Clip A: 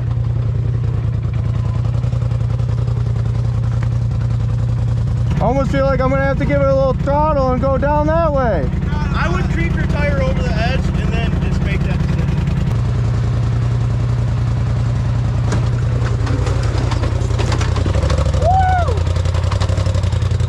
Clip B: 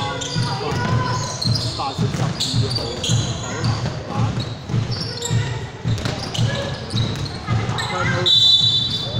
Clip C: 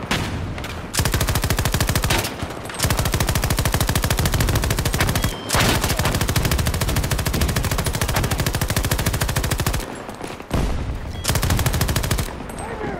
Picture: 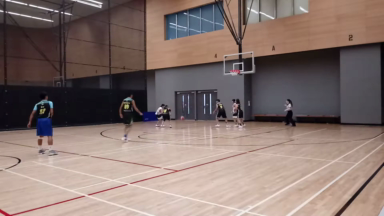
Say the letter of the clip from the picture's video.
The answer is B